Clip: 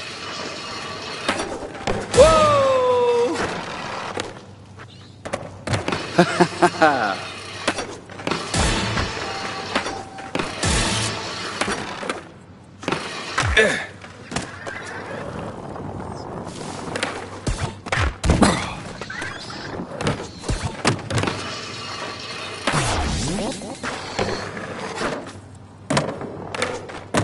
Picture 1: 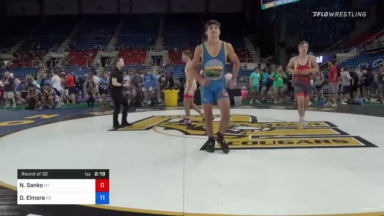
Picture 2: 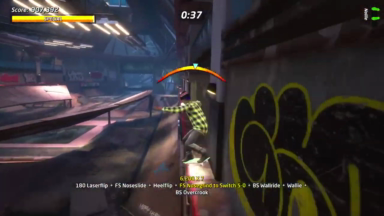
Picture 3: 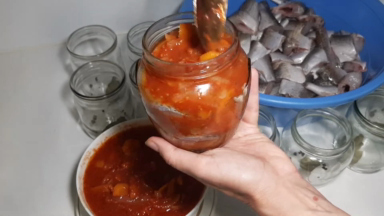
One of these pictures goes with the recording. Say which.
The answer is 2